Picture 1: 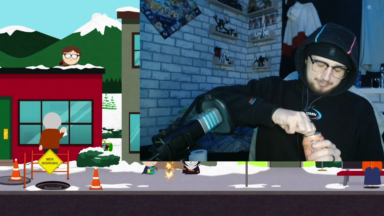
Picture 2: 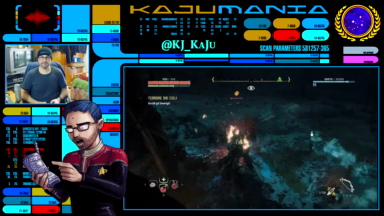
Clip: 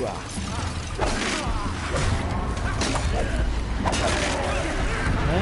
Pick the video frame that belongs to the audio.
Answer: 2